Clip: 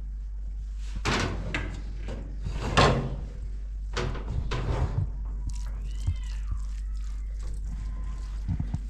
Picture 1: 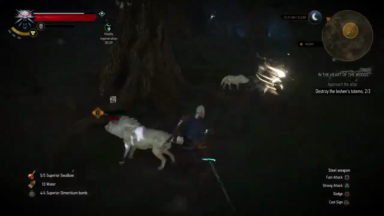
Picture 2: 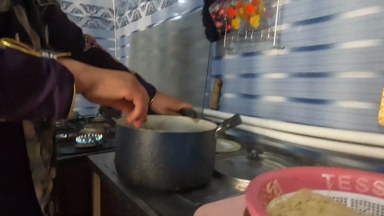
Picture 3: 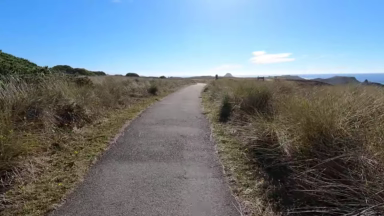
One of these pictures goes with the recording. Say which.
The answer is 2